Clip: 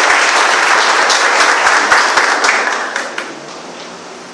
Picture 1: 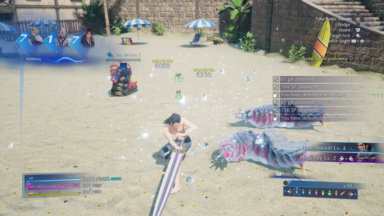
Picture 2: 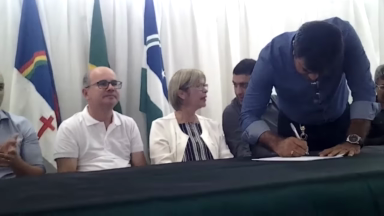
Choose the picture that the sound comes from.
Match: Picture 2